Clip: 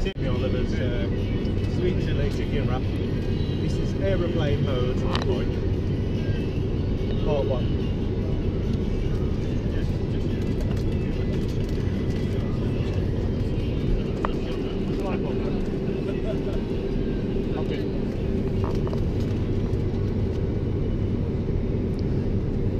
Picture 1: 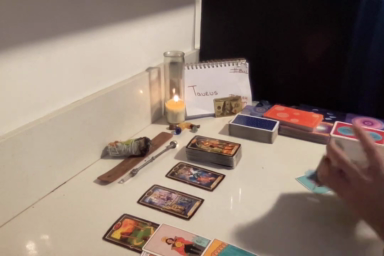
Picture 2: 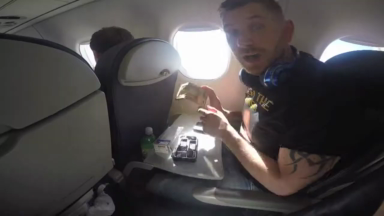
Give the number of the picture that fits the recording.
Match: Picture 2